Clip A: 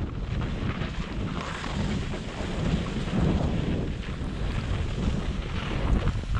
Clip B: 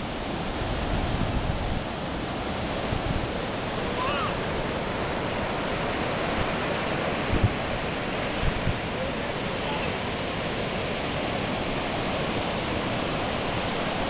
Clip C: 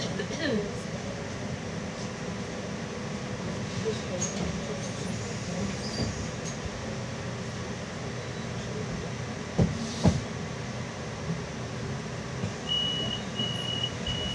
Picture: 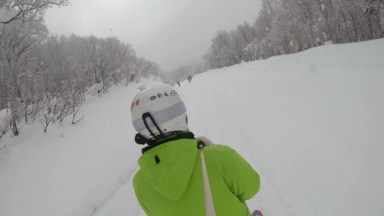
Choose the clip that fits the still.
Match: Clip A